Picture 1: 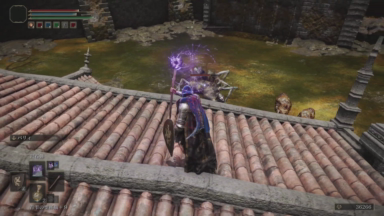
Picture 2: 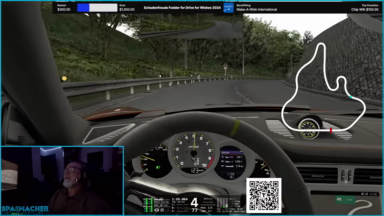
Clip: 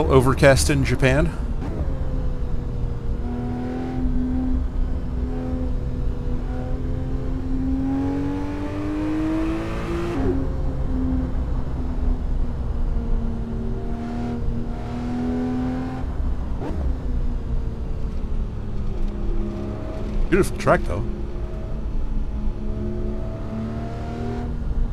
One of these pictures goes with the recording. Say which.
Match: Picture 2